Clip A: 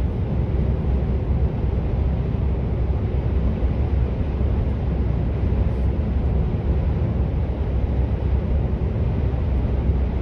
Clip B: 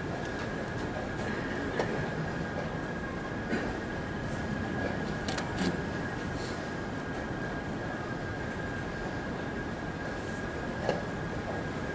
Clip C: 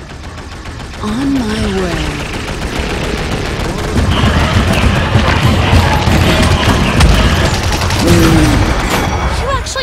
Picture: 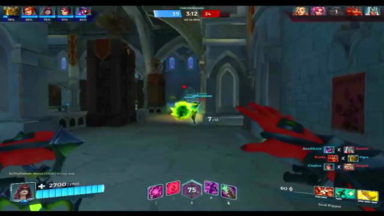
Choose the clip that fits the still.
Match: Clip C